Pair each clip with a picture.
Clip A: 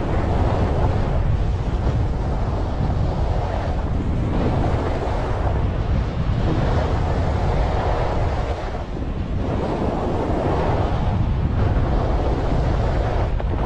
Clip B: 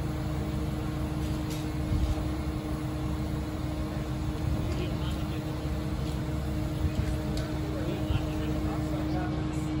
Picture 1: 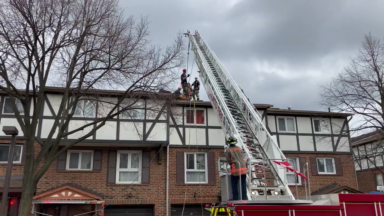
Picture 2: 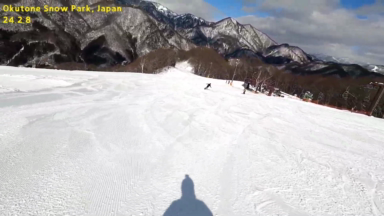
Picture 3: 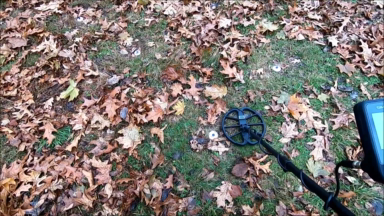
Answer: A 2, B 1